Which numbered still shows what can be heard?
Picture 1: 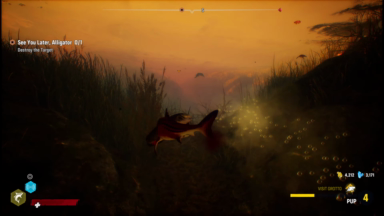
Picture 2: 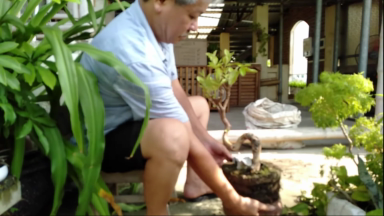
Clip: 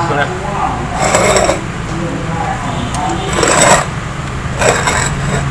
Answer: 2